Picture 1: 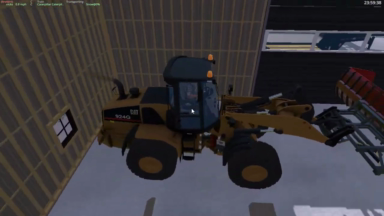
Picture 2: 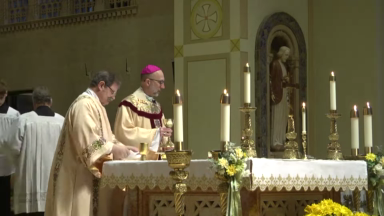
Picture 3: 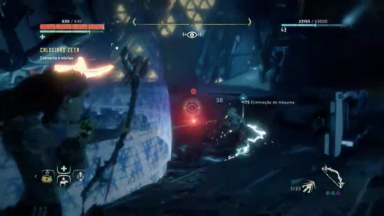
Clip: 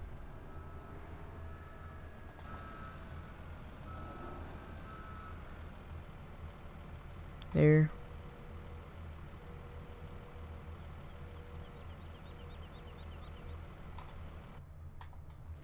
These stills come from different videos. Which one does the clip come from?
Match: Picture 1